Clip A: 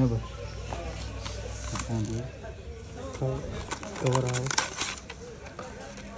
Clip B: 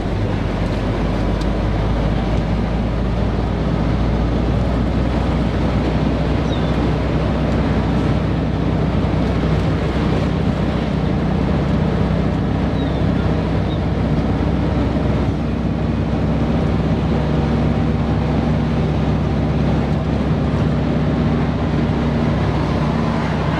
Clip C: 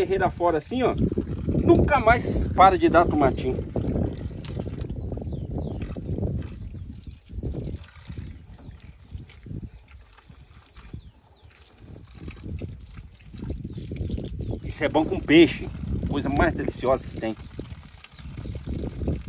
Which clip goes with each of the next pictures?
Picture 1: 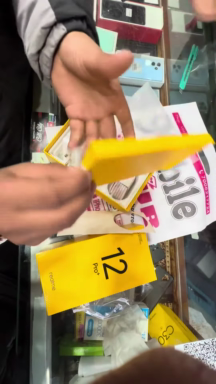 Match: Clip A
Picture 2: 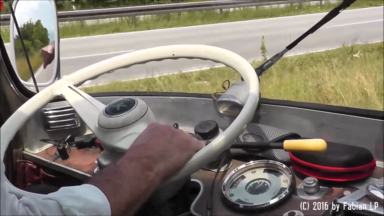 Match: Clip B